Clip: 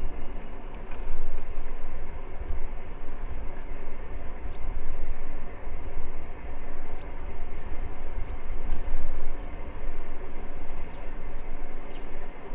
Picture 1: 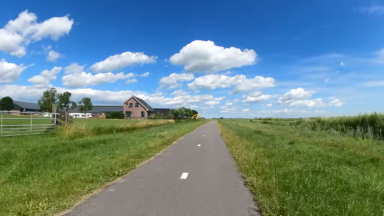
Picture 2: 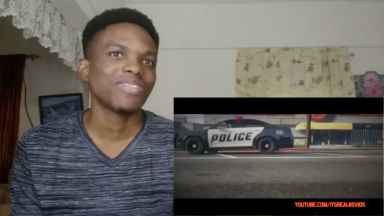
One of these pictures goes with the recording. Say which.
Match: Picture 1